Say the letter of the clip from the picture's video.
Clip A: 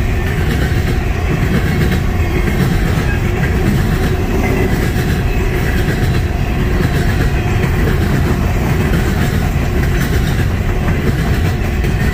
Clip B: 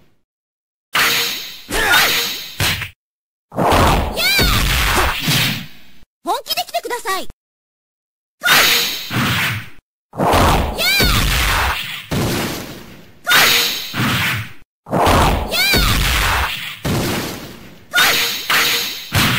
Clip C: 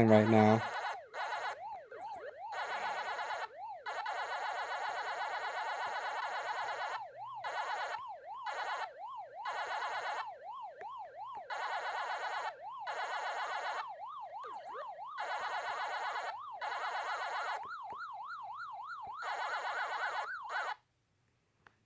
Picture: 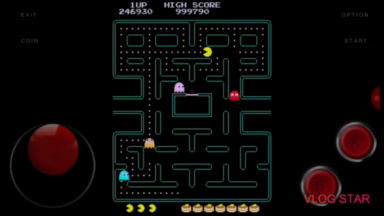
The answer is C